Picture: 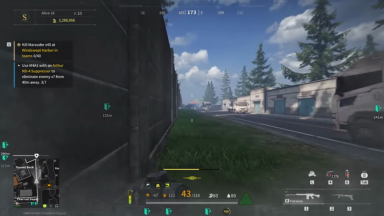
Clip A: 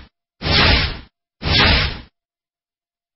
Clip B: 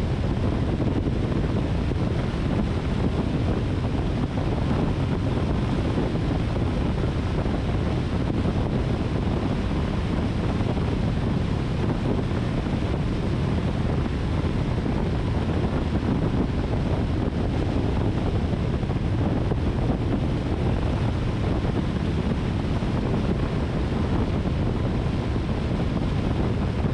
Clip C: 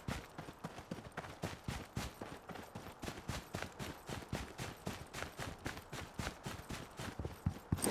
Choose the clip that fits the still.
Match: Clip C